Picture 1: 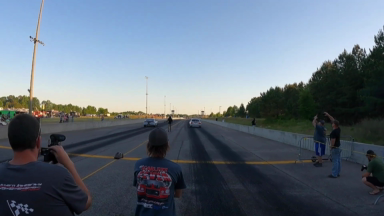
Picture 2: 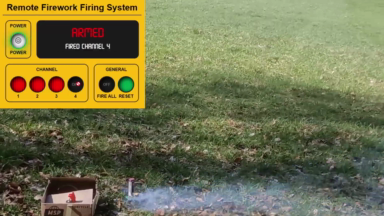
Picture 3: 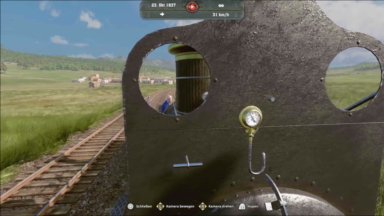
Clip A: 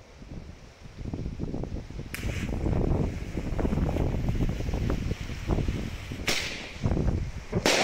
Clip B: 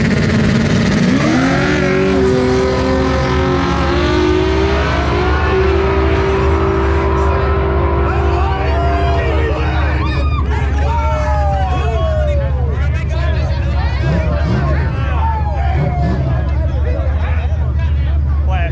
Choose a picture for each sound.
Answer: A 2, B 1